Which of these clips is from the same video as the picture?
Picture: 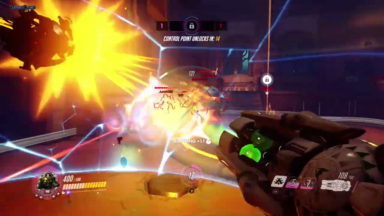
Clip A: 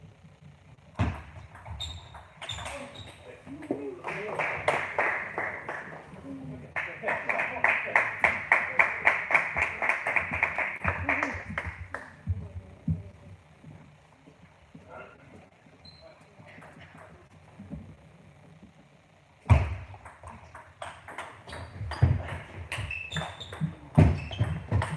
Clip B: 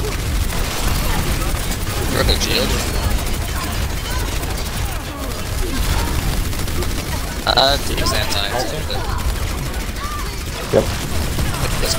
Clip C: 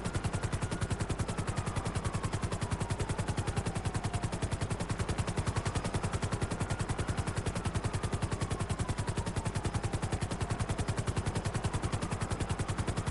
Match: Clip B